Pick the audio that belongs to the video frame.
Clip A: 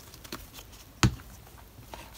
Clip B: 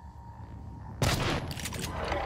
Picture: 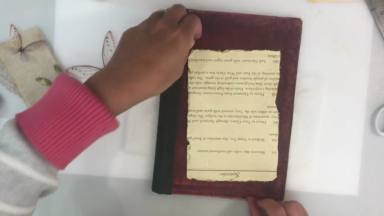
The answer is A